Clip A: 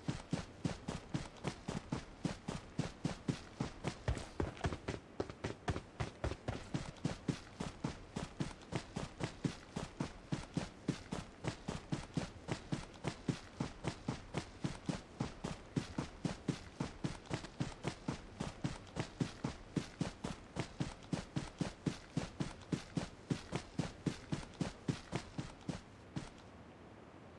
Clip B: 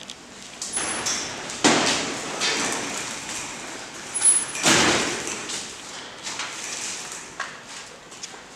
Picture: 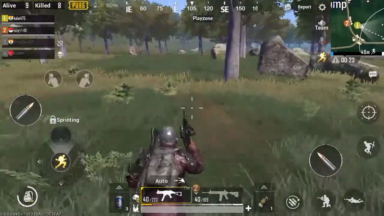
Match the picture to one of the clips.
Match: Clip A